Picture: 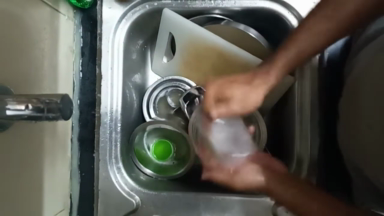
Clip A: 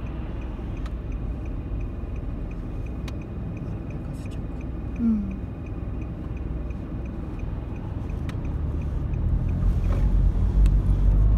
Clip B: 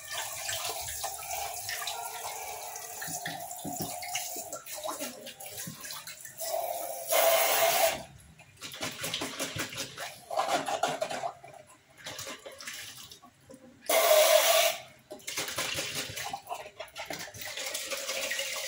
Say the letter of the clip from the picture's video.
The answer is B